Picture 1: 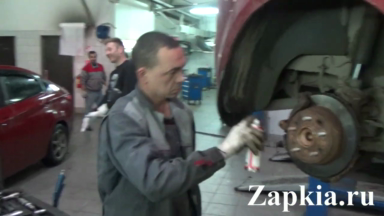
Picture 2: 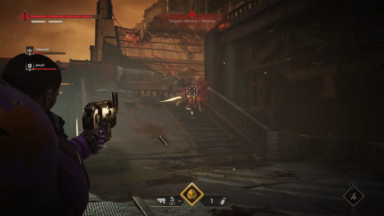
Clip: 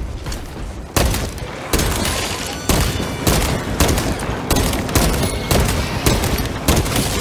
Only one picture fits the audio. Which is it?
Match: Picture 2